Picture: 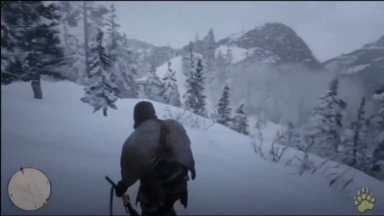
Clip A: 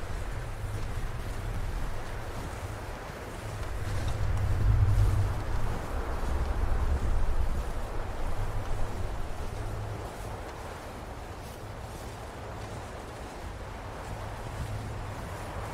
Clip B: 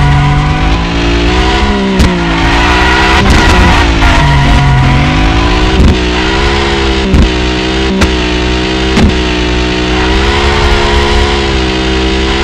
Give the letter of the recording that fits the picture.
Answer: A